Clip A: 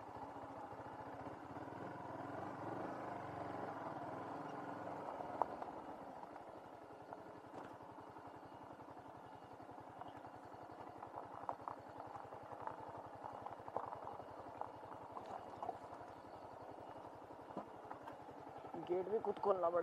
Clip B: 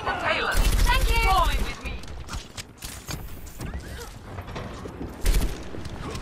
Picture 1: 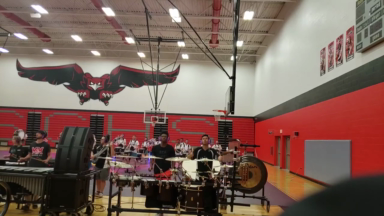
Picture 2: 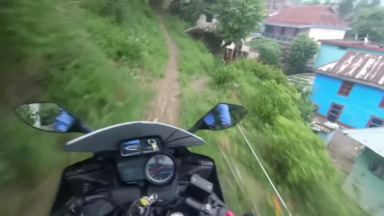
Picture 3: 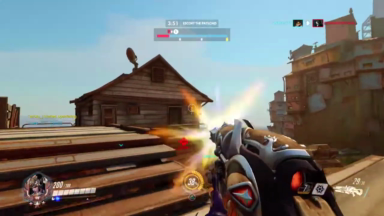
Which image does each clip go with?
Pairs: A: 2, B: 3